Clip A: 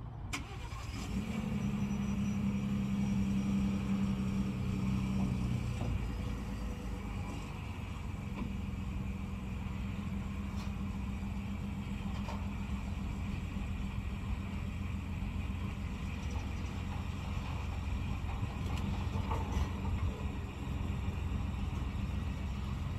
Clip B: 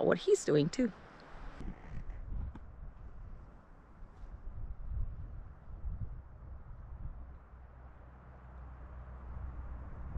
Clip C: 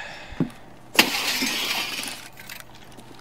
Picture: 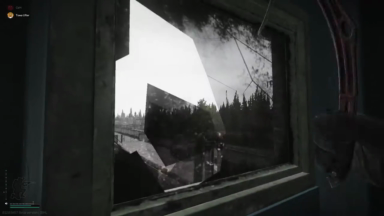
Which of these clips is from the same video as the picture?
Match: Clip C